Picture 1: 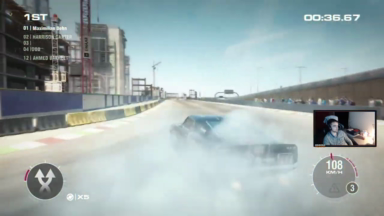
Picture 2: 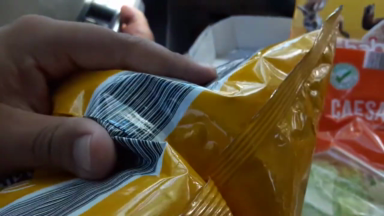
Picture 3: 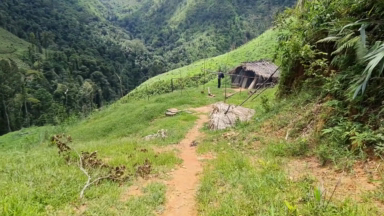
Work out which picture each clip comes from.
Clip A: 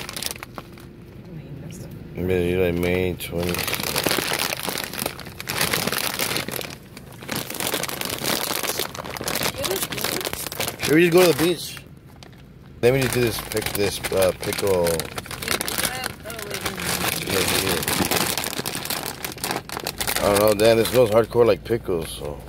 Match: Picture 2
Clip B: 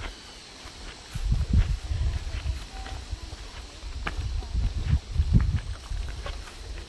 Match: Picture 3